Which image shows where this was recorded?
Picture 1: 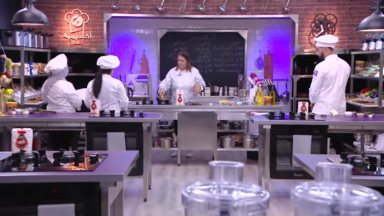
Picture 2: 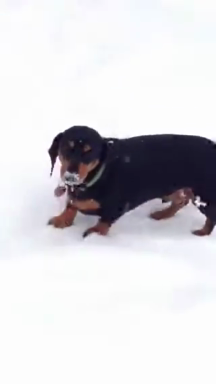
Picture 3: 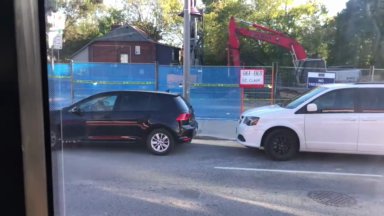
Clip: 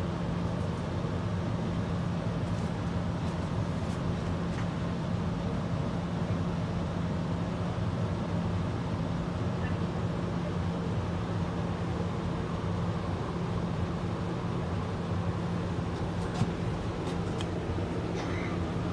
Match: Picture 3